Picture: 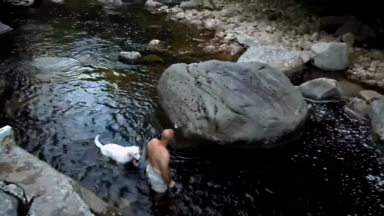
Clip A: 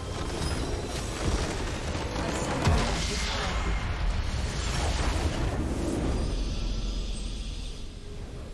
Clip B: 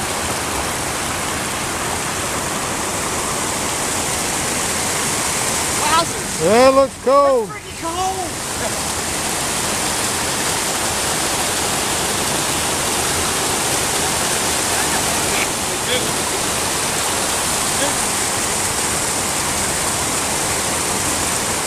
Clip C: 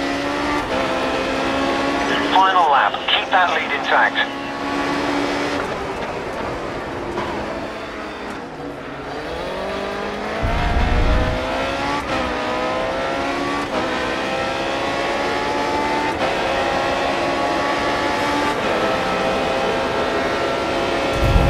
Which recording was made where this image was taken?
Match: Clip B